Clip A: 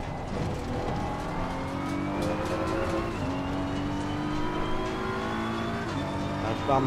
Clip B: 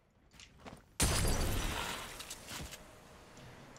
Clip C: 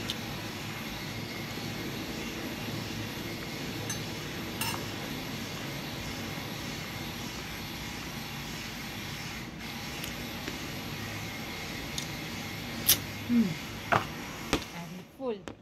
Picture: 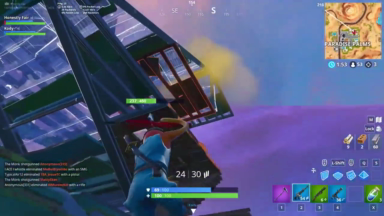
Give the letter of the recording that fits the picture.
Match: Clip B